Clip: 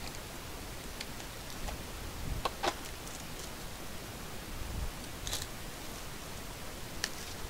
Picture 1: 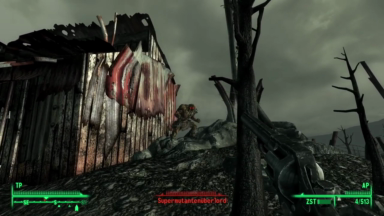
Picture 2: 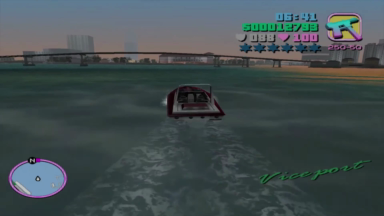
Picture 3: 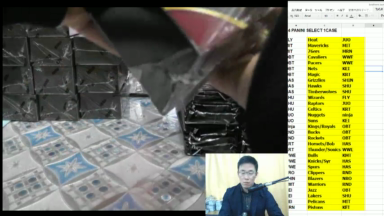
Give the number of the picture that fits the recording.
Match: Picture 3